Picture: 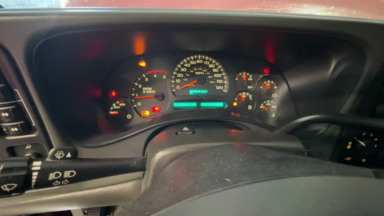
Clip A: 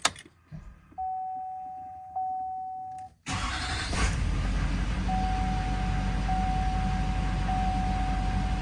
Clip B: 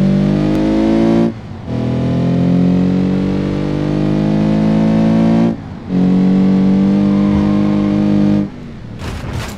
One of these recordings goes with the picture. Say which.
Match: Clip A